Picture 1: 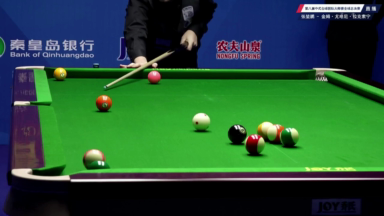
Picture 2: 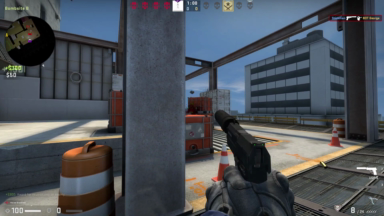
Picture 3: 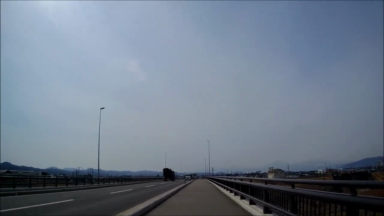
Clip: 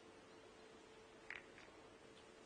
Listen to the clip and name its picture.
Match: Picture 1